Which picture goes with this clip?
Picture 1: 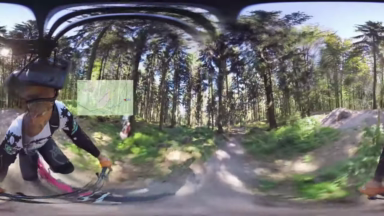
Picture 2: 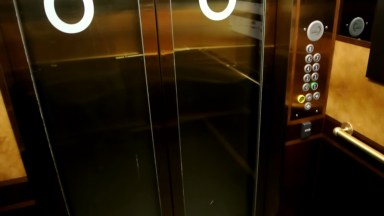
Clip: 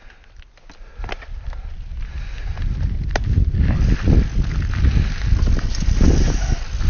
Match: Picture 1